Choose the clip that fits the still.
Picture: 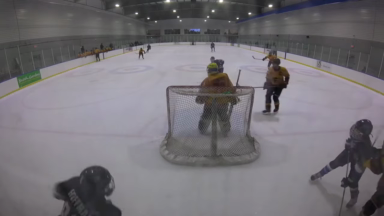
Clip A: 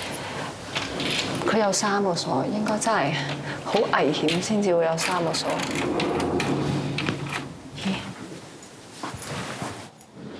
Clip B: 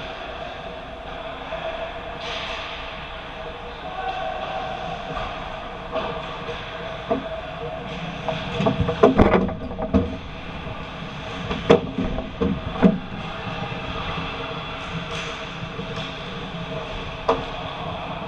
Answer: B